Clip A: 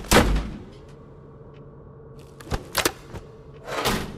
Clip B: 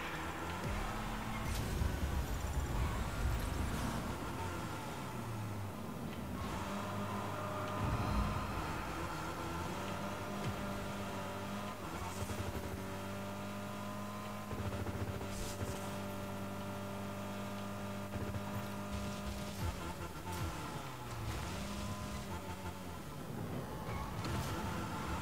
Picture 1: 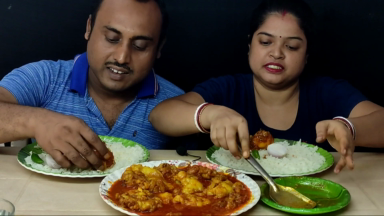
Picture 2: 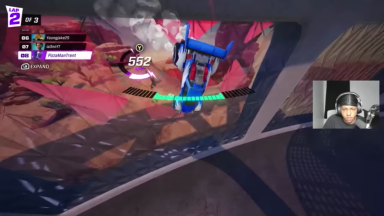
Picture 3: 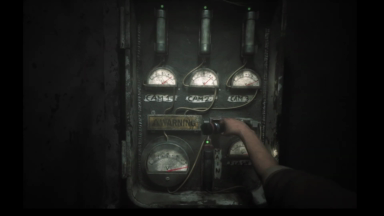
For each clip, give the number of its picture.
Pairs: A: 3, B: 2